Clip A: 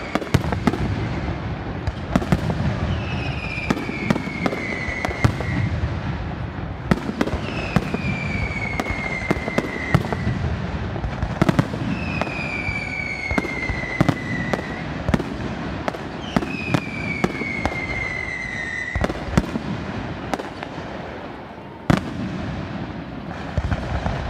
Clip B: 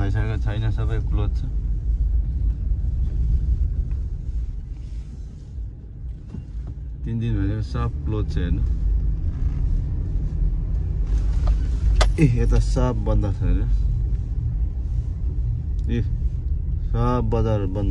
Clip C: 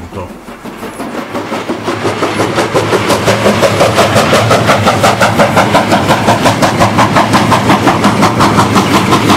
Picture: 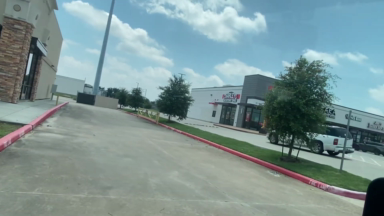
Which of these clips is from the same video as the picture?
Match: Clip B